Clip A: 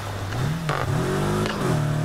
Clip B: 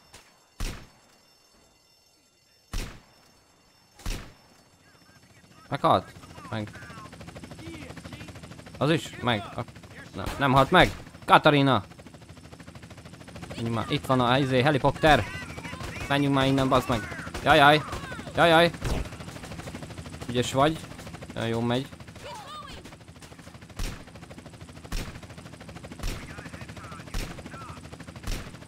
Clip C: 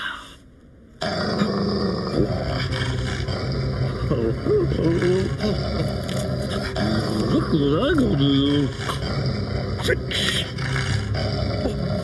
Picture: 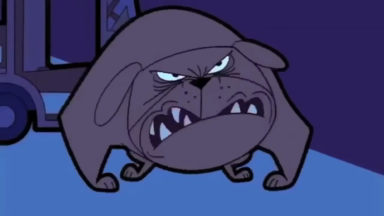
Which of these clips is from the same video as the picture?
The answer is C